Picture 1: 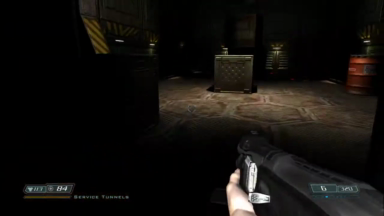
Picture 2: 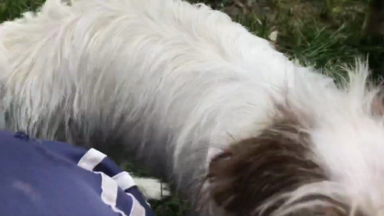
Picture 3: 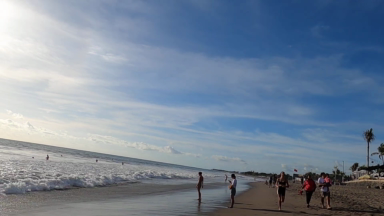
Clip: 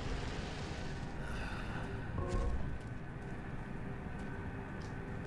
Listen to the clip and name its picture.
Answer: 1